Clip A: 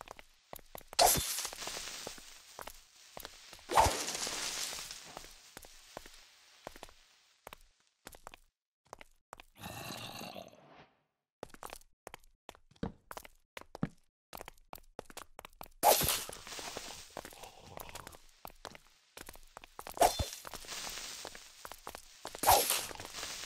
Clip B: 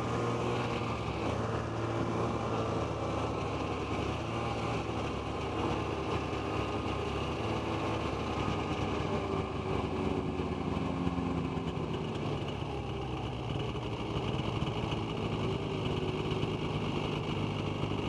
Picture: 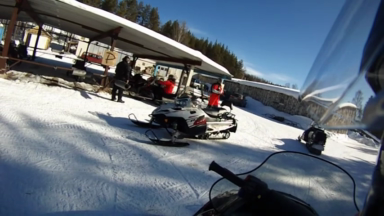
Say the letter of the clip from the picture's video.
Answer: B